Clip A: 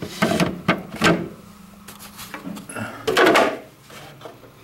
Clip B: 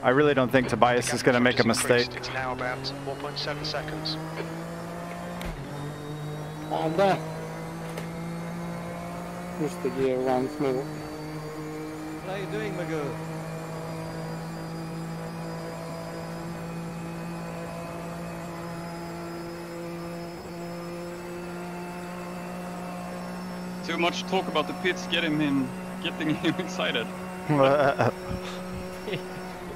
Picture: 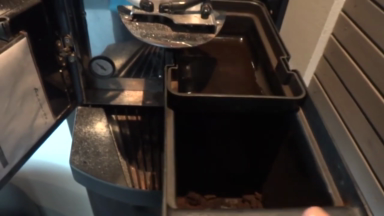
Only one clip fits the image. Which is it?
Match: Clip A